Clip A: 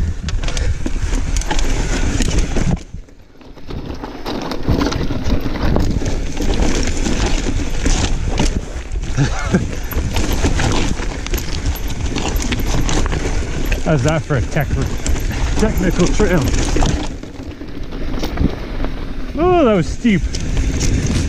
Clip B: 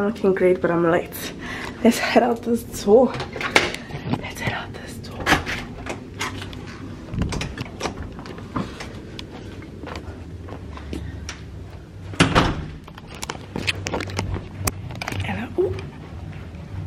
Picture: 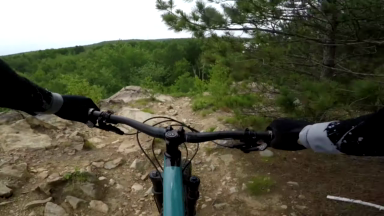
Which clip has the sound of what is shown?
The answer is A